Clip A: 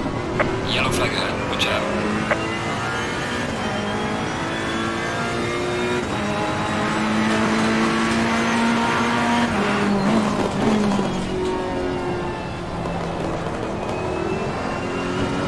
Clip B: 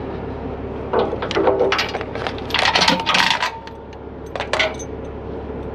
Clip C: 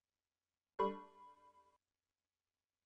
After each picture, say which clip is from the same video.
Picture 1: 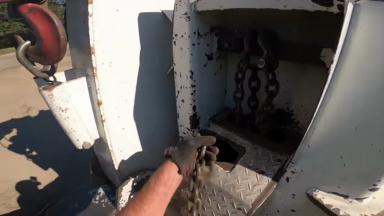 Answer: B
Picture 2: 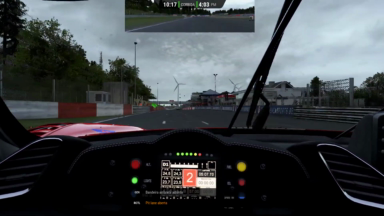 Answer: A